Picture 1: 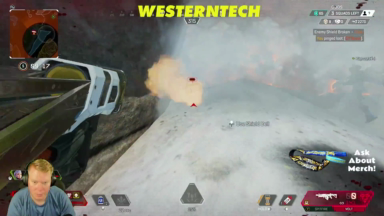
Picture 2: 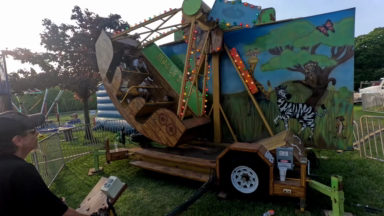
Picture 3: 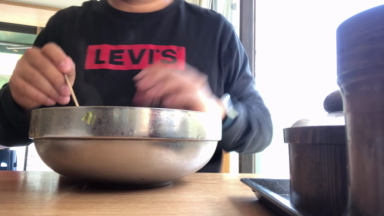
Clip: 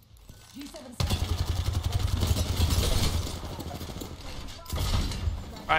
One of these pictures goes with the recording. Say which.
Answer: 1